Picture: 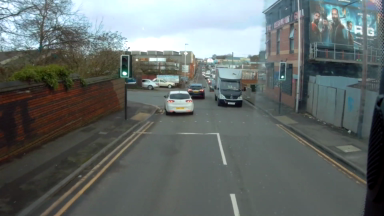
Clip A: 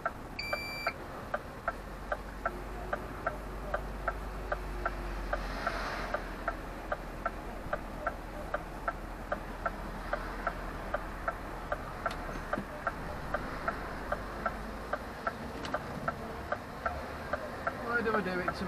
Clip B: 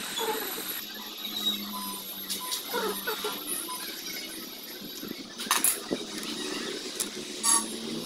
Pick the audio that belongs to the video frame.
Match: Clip A